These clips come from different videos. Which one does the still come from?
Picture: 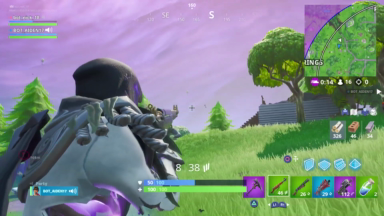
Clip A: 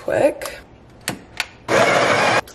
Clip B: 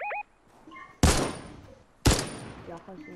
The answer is B